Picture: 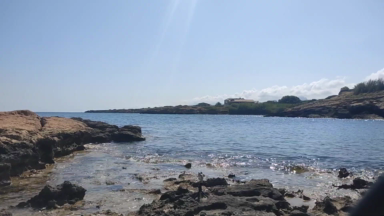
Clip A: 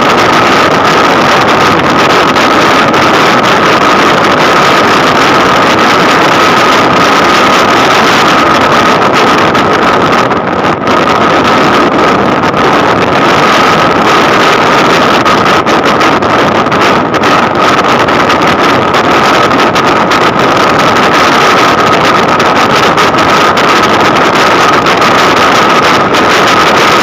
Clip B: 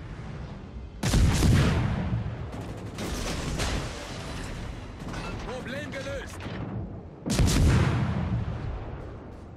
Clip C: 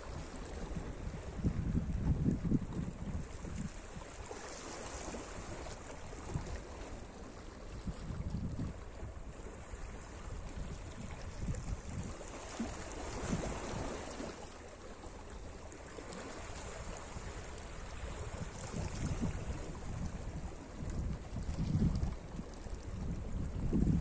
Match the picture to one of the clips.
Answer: C